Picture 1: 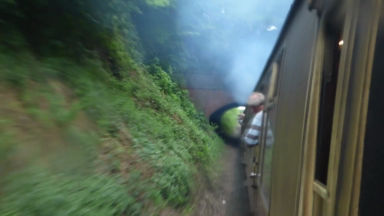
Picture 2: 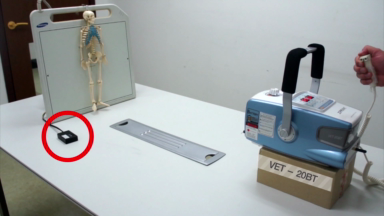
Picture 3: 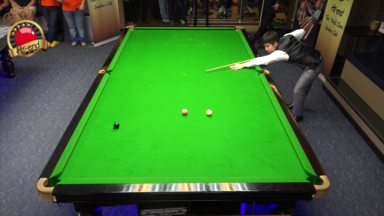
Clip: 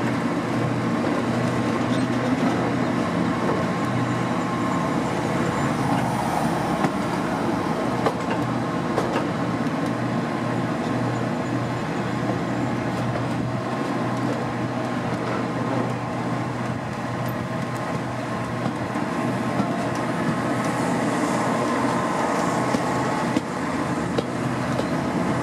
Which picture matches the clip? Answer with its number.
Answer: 1